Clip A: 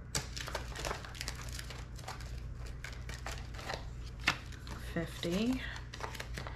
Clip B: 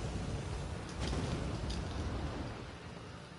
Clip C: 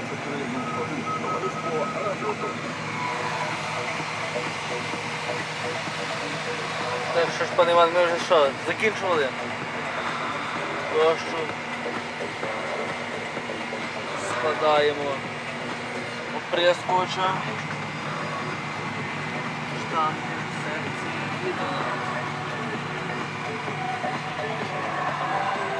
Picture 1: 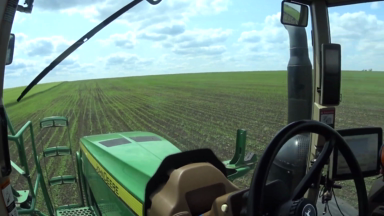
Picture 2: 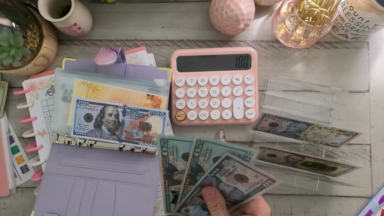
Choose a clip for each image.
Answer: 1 C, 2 A